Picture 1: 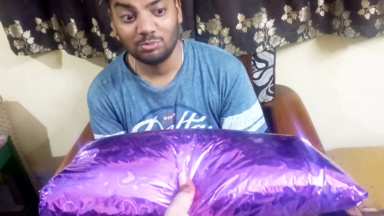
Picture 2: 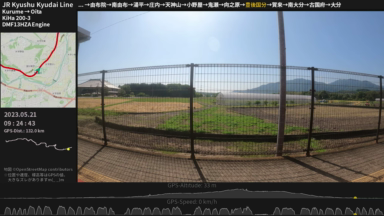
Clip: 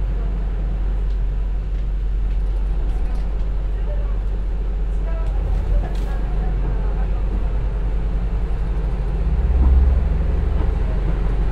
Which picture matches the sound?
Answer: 2